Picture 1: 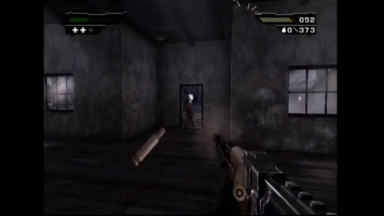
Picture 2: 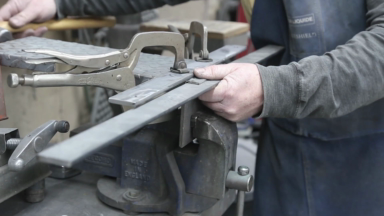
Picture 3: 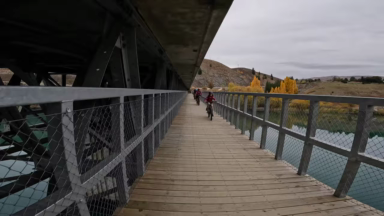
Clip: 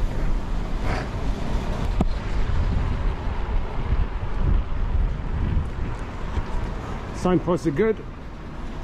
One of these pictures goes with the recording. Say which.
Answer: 3